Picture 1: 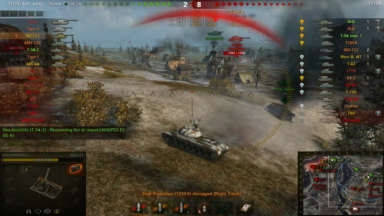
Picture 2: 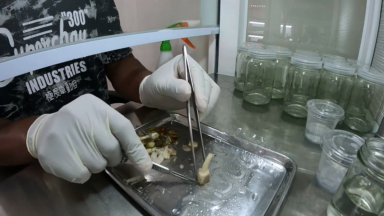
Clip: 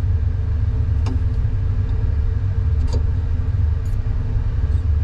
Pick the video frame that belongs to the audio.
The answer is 2